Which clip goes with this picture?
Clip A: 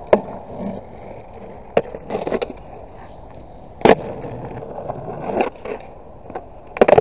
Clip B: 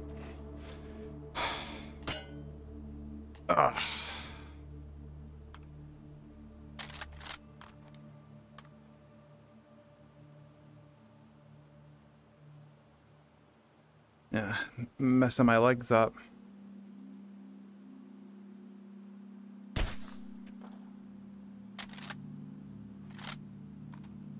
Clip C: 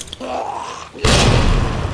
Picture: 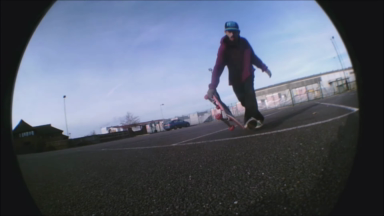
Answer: A